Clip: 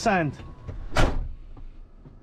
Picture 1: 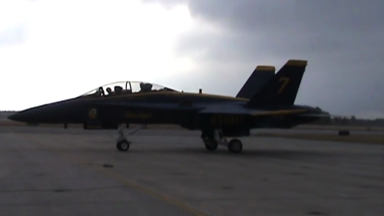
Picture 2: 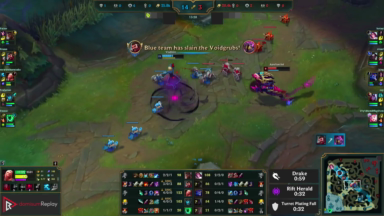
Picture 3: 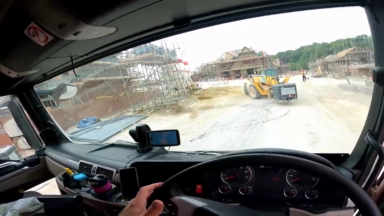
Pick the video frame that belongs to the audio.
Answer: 3